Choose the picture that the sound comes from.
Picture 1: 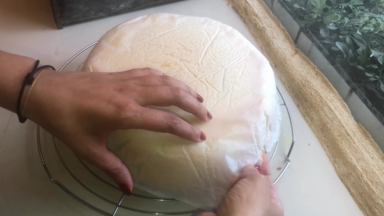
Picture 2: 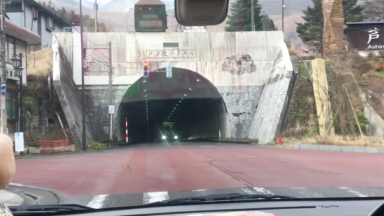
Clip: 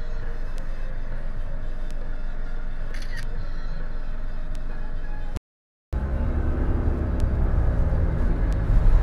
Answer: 2